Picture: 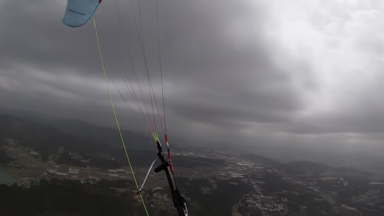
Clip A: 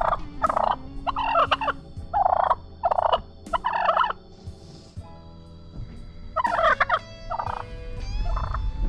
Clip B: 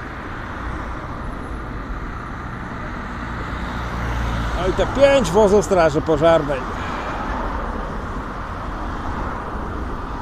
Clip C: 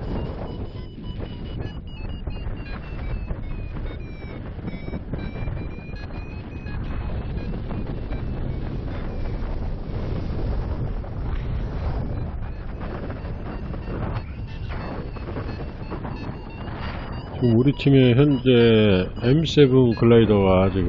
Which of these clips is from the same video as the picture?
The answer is C